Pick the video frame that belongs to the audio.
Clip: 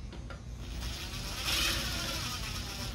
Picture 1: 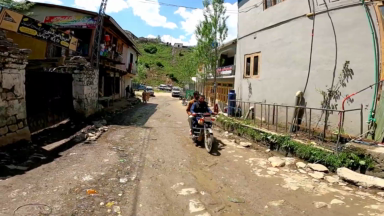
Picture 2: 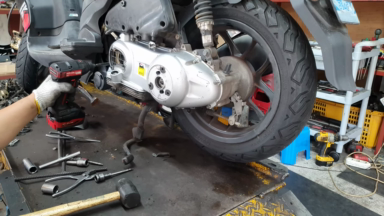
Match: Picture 2